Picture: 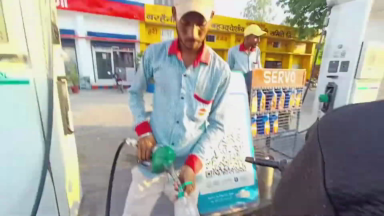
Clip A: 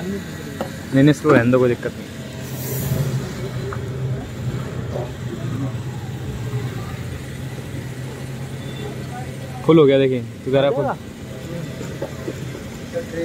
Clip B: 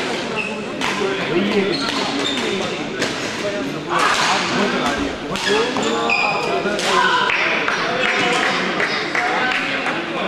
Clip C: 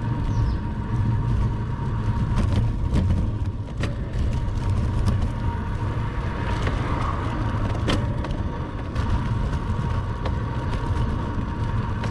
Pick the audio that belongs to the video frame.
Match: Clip A